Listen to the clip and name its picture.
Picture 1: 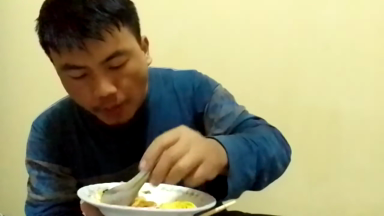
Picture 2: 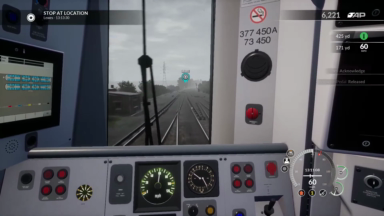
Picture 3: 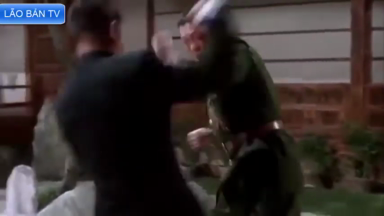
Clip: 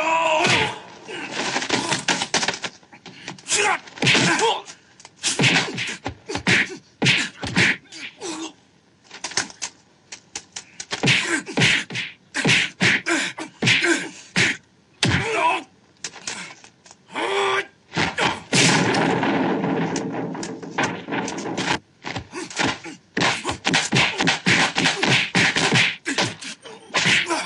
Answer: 3